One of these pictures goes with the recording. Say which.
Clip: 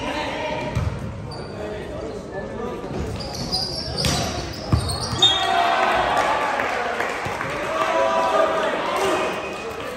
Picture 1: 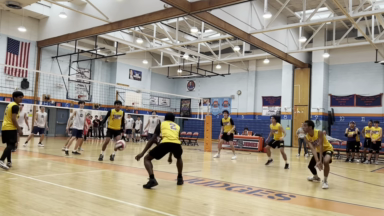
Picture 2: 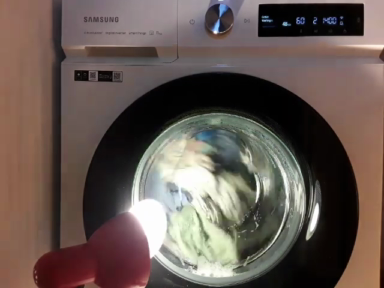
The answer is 1